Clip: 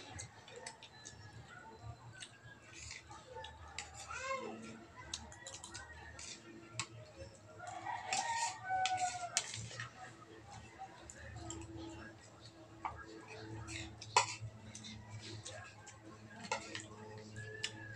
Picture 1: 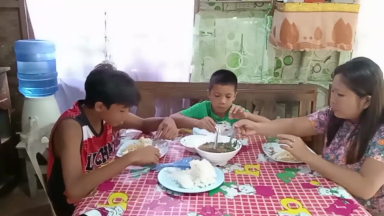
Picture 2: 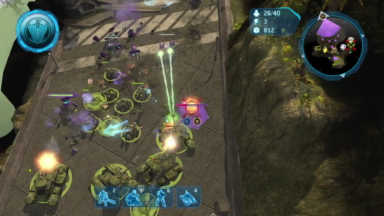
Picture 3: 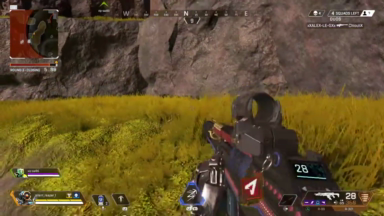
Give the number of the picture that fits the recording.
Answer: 1